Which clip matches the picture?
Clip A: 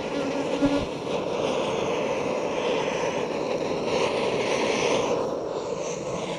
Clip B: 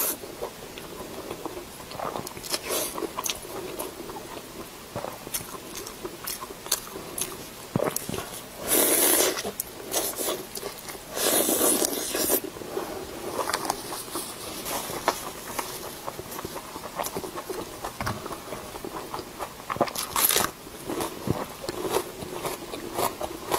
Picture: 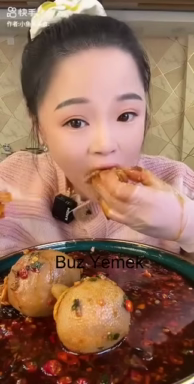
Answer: B